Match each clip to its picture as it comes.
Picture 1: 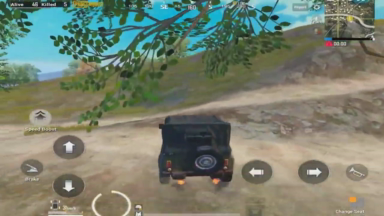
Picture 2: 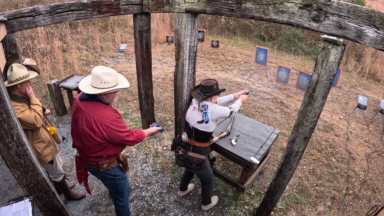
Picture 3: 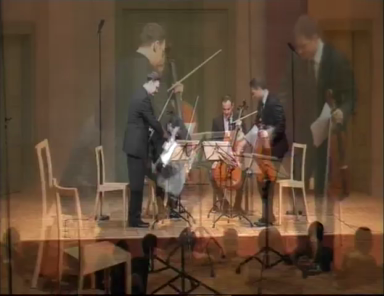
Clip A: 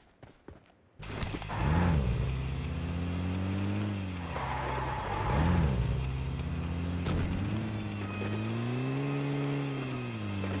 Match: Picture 1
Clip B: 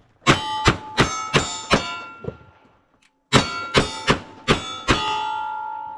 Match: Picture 2